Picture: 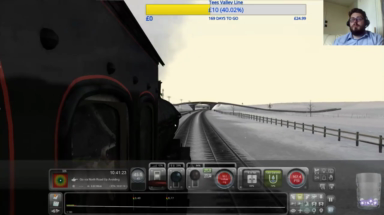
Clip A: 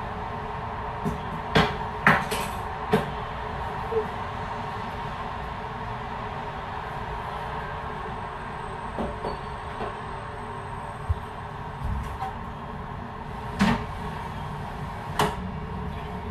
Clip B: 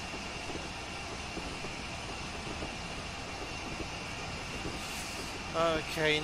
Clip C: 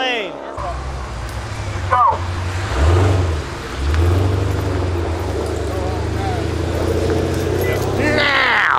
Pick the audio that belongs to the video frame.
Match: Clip B